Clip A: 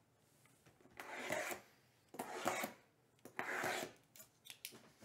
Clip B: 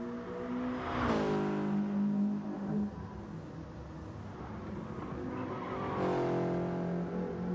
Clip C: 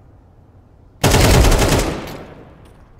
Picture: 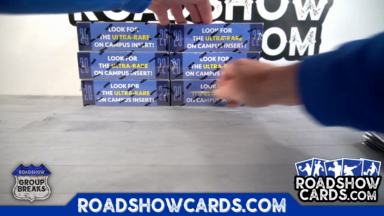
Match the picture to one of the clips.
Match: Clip A